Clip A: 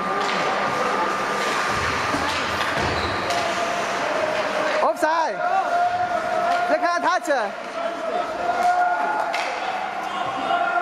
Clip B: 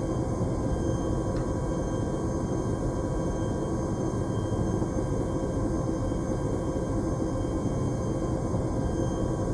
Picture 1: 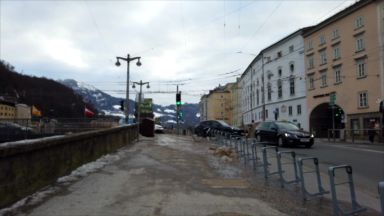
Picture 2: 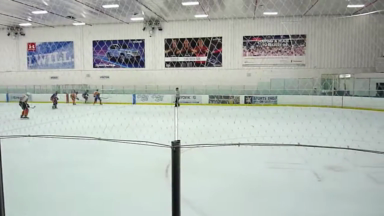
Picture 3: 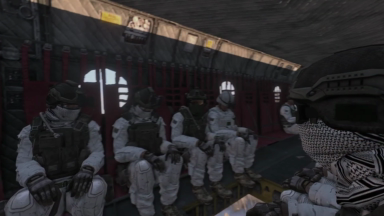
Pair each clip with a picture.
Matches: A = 2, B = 3